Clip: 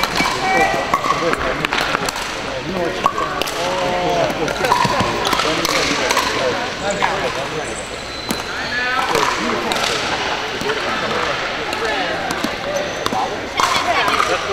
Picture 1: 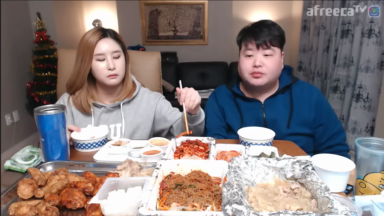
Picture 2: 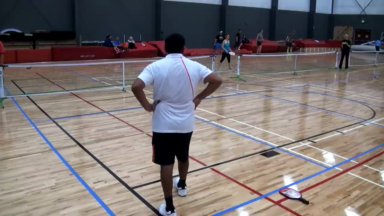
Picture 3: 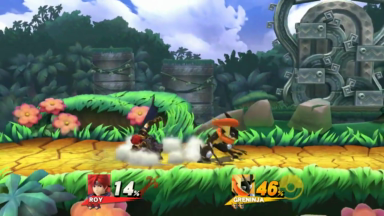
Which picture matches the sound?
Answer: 2